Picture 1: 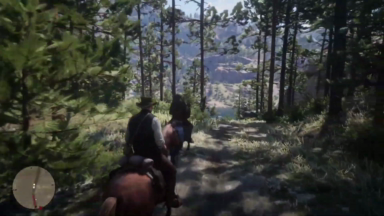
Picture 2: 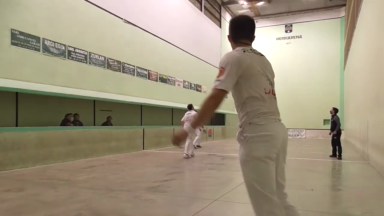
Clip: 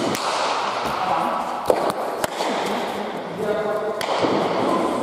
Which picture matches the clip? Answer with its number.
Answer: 2